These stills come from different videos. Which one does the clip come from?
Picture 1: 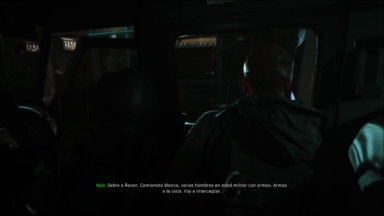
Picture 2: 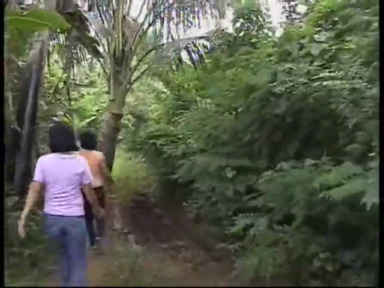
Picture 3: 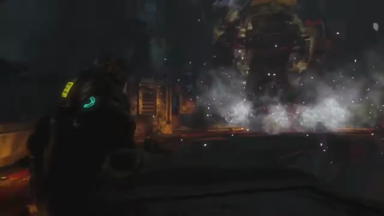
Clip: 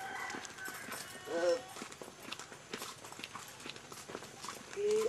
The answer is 2